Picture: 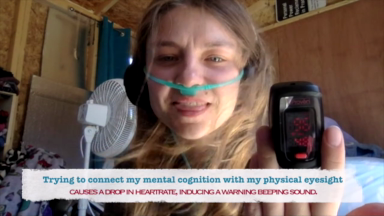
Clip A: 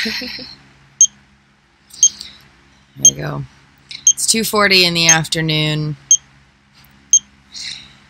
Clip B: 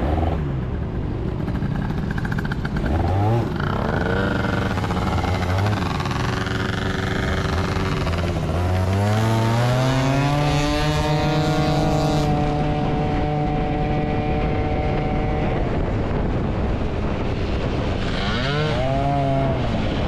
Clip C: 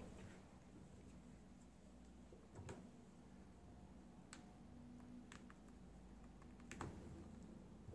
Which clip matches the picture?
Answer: A